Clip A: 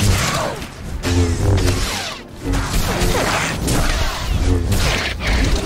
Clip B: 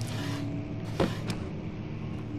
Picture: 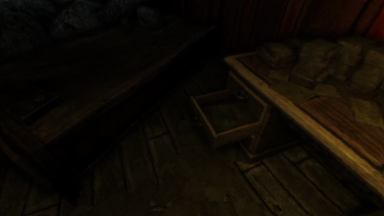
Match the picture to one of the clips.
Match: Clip B